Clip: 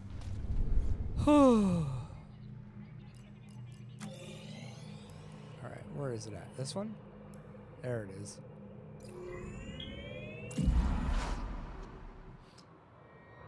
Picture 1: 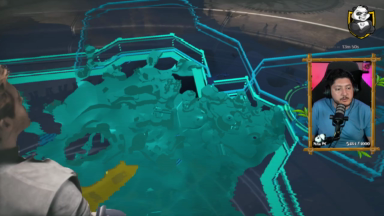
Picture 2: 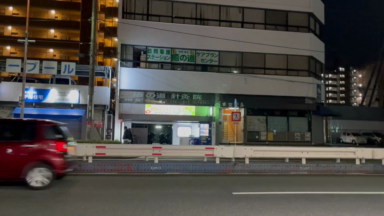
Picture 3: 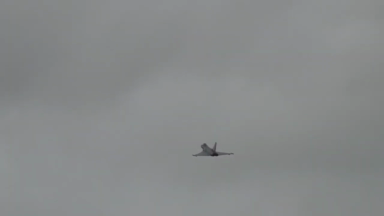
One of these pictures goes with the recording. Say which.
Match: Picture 1